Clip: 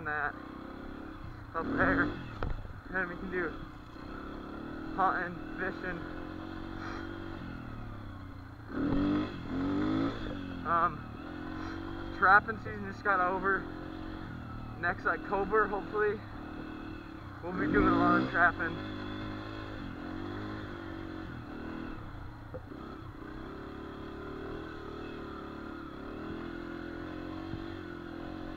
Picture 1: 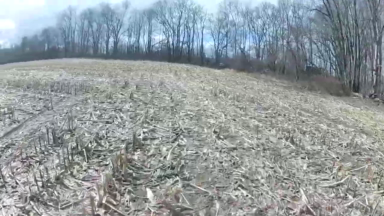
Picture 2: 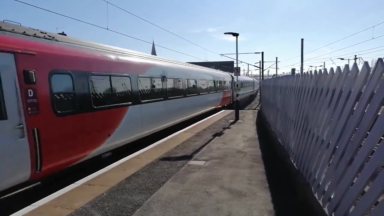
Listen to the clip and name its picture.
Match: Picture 1